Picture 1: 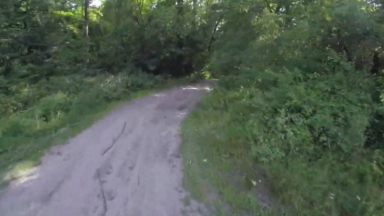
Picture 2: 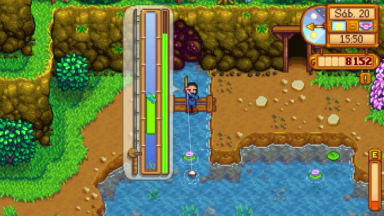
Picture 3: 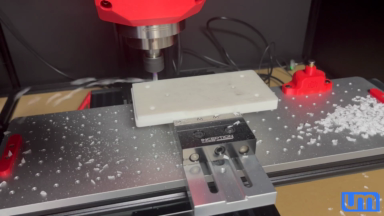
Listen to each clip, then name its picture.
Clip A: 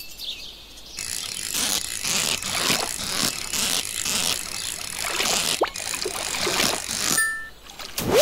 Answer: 2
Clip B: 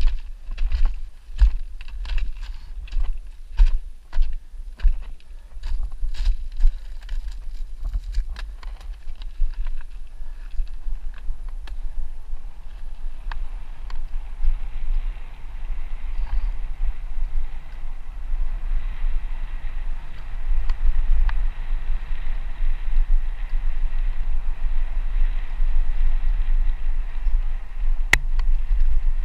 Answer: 1